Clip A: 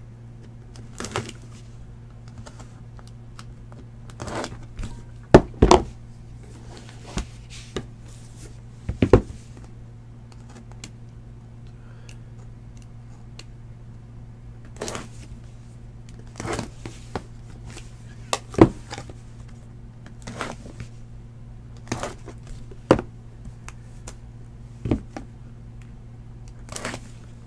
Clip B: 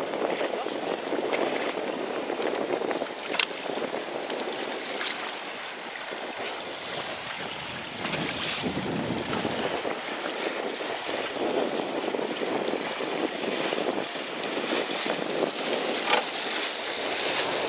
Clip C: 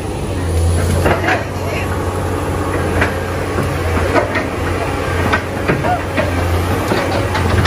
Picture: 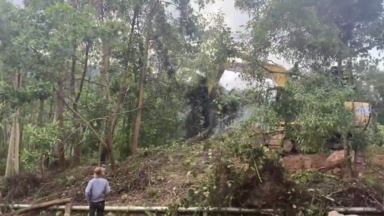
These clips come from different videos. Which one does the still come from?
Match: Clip C